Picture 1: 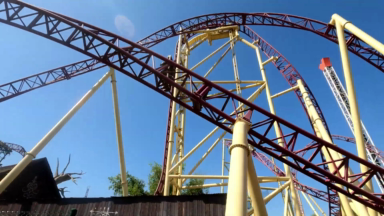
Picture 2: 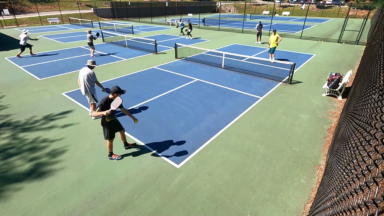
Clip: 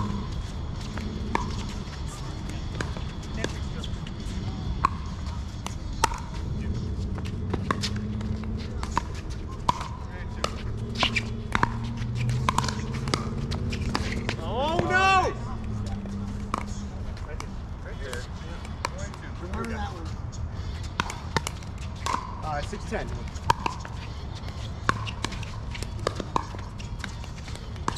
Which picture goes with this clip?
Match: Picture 2